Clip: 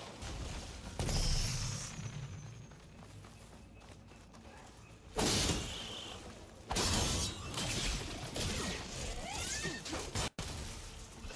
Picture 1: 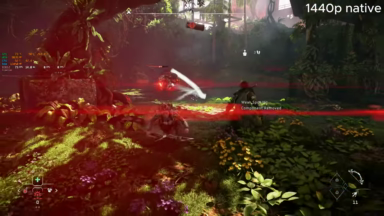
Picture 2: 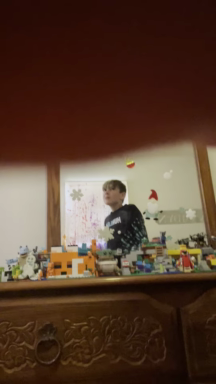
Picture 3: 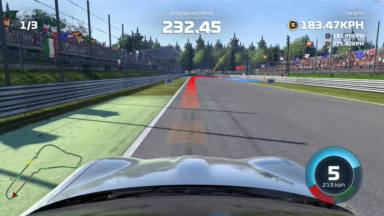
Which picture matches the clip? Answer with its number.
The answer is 1